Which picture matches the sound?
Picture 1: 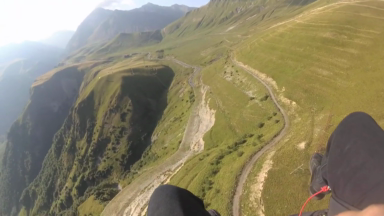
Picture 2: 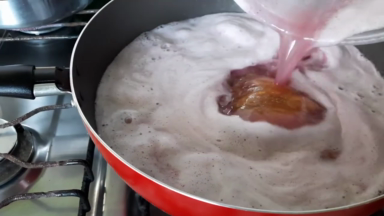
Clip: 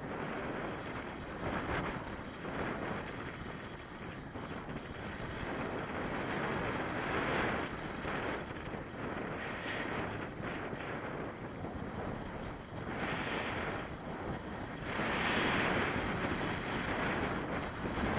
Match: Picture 1